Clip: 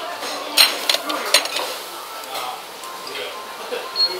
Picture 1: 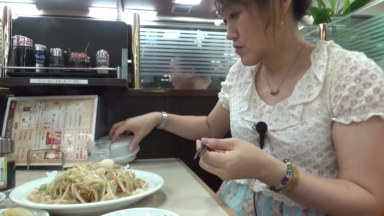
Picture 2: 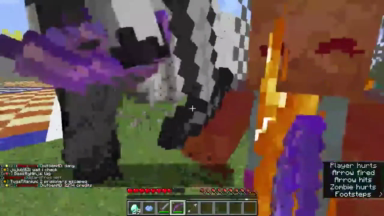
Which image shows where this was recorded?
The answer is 1